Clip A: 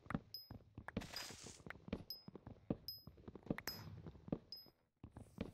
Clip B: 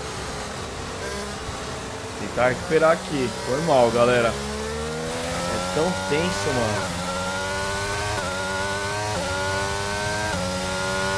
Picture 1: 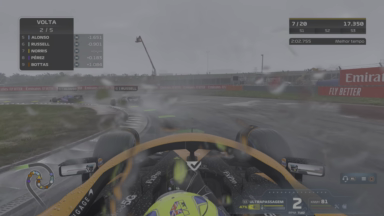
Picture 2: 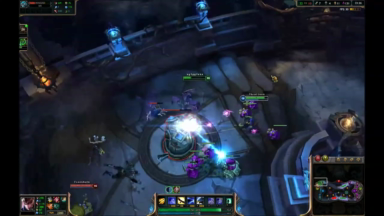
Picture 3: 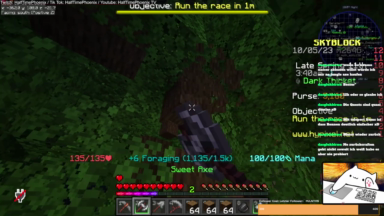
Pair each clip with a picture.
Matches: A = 3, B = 1